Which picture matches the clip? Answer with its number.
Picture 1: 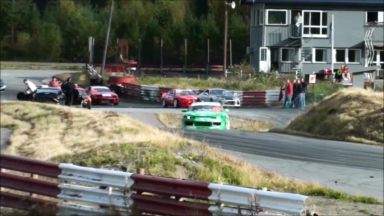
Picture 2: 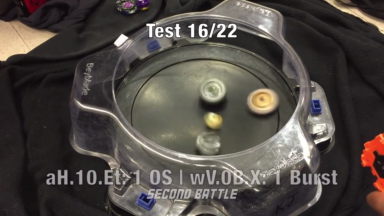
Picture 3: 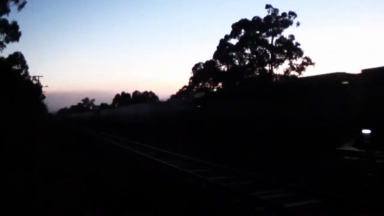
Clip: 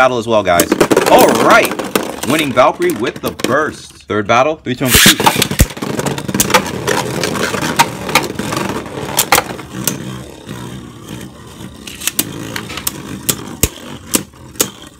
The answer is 2